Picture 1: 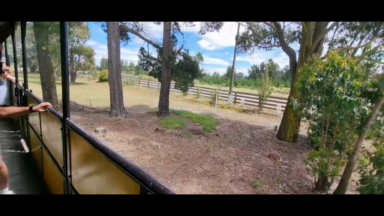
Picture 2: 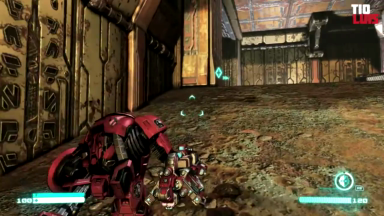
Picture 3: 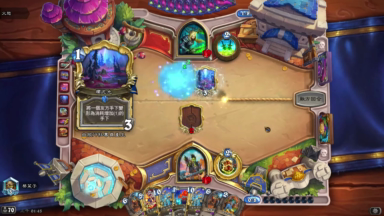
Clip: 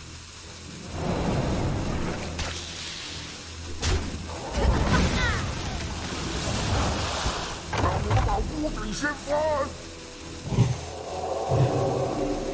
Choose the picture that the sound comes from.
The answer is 3